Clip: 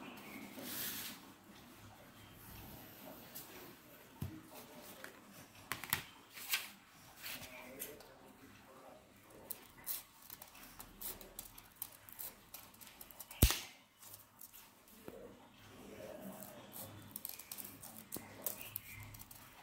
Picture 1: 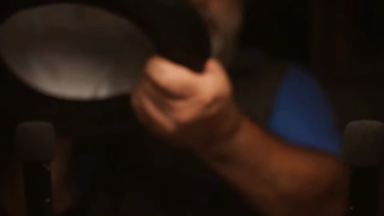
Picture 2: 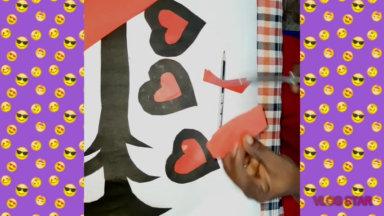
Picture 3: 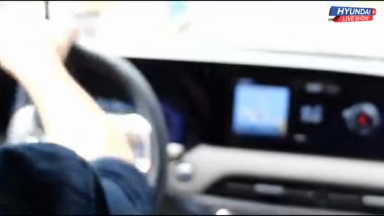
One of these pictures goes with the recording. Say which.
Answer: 2